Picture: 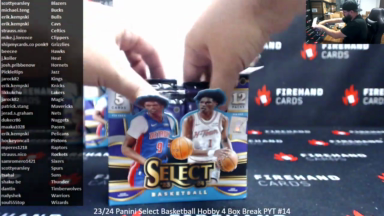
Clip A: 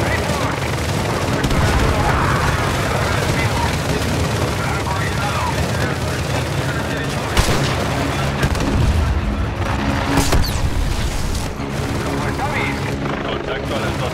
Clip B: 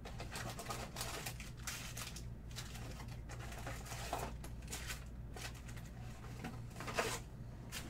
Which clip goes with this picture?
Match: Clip B